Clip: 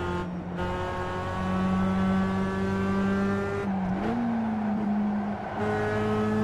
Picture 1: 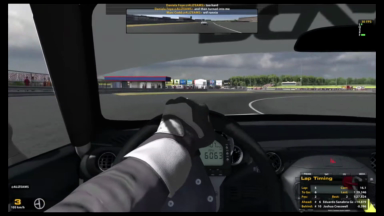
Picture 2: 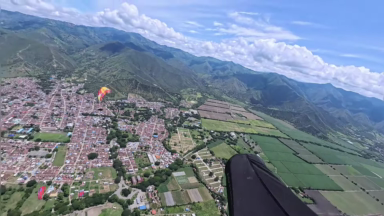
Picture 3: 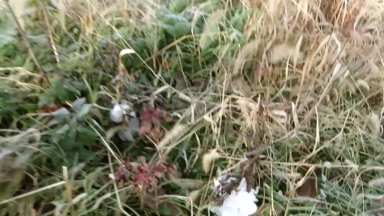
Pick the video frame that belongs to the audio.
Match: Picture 1